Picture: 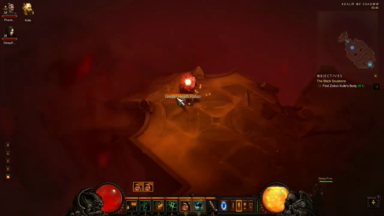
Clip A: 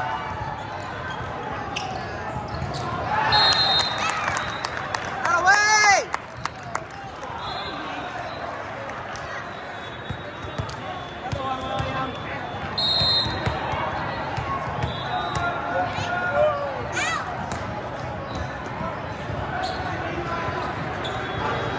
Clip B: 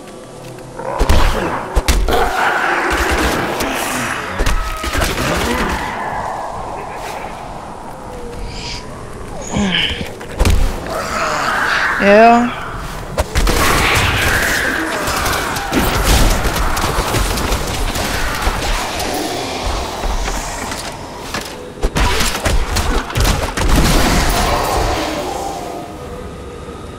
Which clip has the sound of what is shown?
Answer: B